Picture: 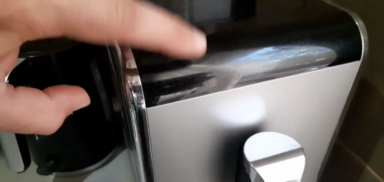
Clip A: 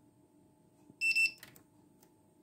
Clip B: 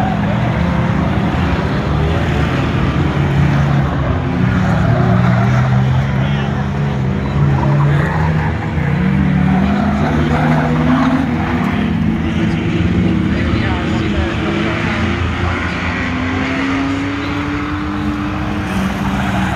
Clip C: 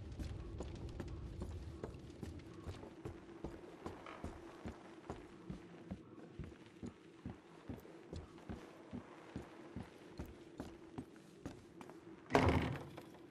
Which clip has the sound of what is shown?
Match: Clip A